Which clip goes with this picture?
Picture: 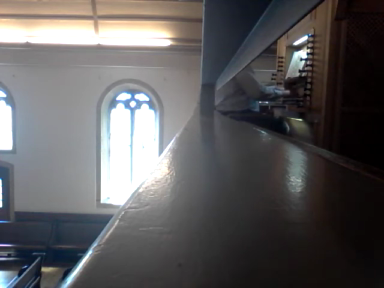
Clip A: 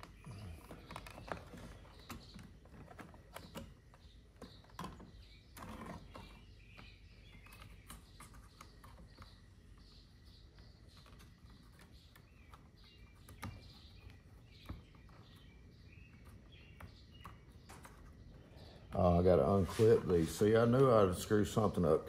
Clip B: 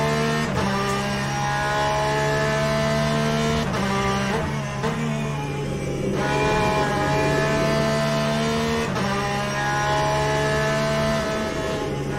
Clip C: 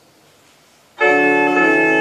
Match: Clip C